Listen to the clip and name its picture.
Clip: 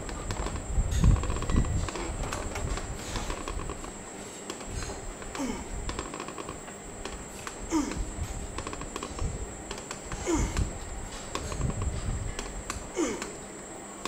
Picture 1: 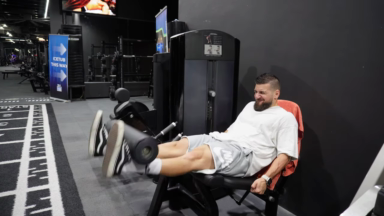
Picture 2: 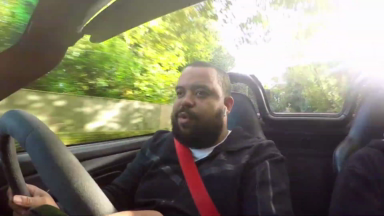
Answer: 1